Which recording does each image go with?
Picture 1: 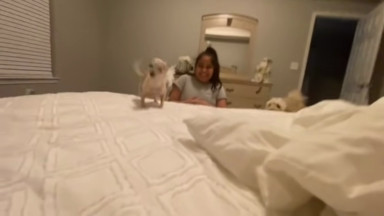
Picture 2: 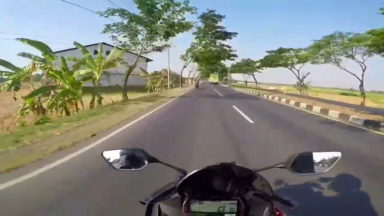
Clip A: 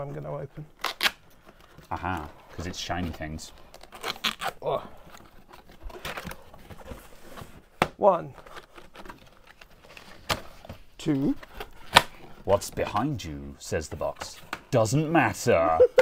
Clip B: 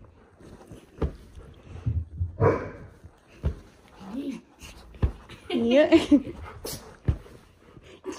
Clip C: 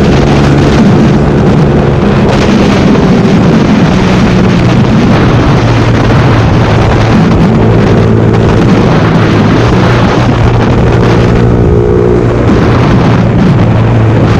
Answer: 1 B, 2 C